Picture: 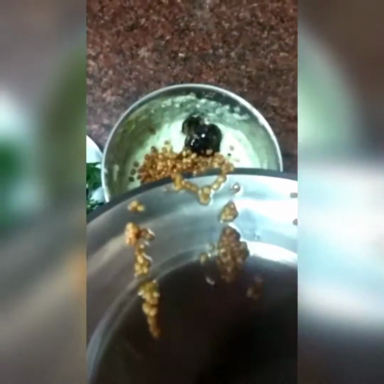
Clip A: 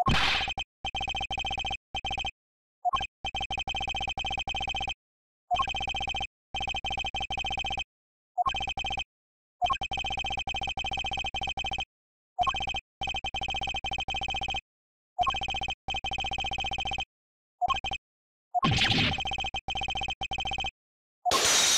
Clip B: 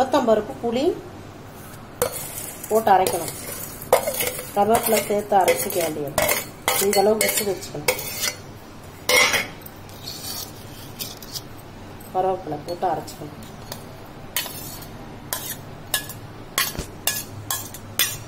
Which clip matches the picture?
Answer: B